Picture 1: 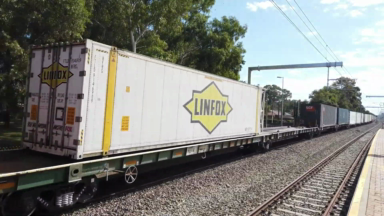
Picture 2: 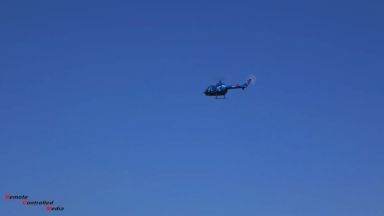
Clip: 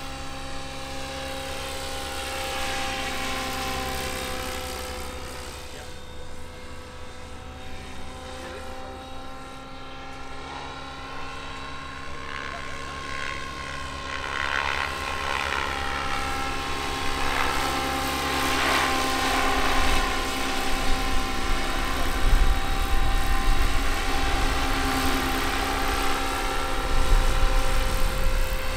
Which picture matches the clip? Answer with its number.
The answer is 2